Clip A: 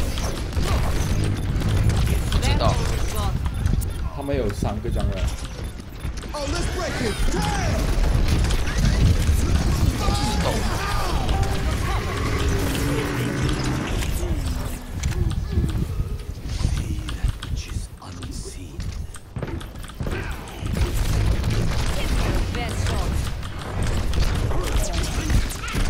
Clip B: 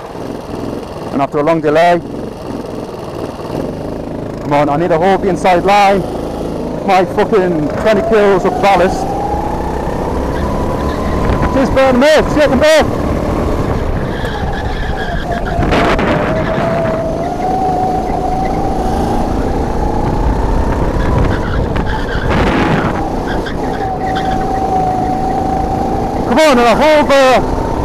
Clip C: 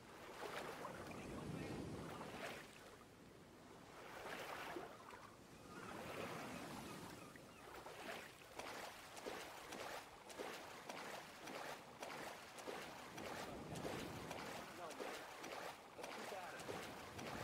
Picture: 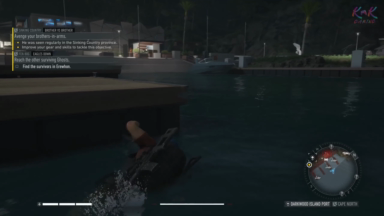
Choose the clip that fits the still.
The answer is C